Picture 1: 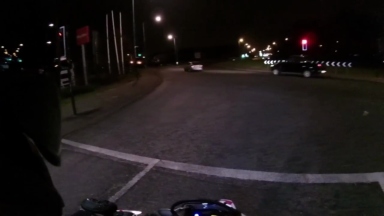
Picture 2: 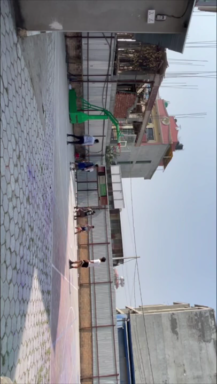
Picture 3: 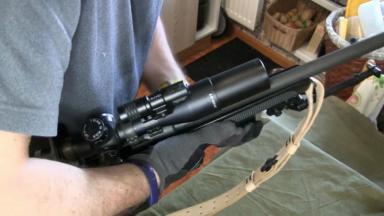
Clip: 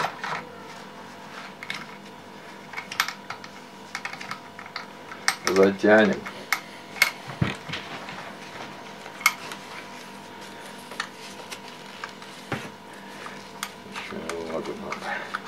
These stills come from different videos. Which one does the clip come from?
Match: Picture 3